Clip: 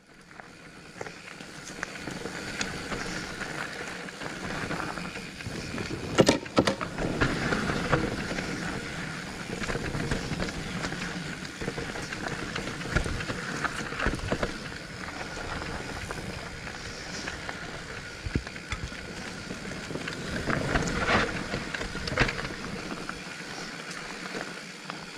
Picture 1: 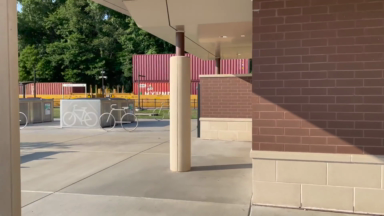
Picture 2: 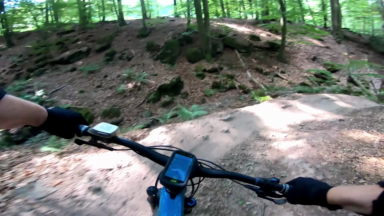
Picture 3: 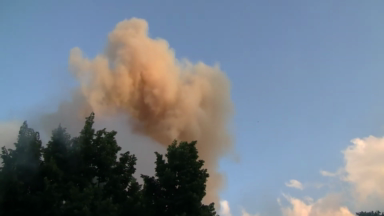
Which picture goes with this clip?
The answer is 2